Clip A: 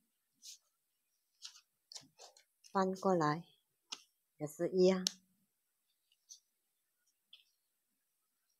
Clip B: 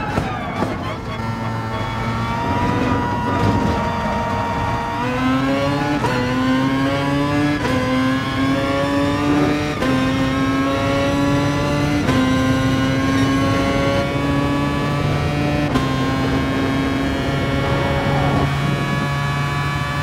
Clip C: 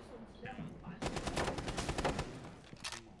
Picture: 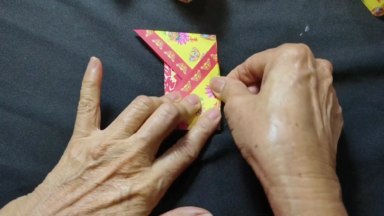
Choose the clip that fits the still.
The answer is A